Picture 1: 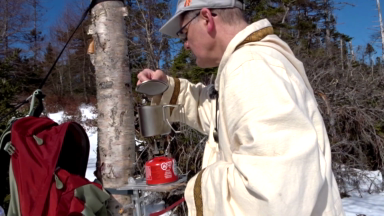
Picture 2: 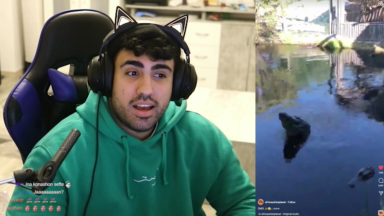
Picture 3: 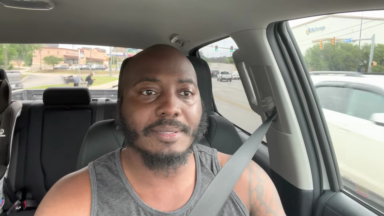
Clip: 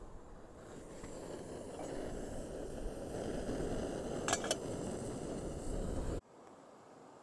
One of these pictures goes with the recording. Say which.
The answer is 1